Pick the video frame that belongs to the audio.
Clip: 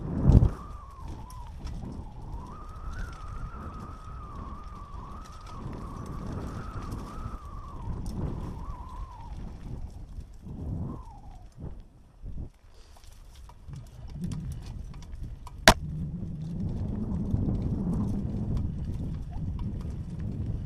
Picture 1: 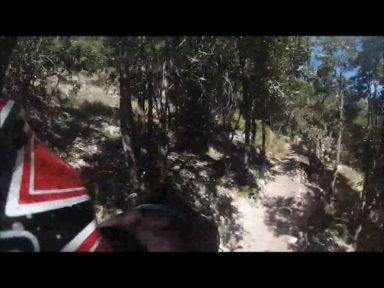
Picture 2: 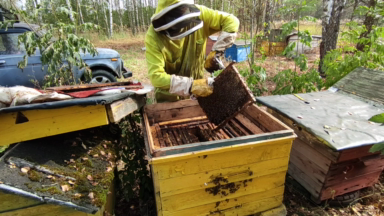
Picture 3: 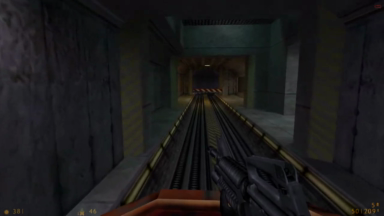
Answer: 1